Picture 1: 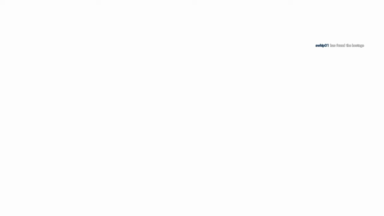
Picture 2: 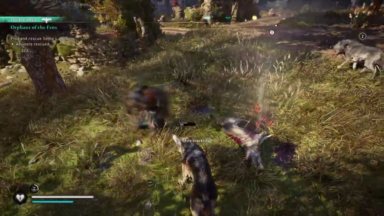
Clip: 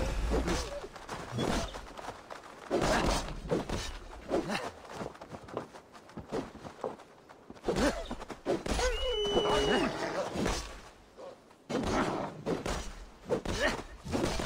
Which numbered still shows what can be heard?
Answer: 2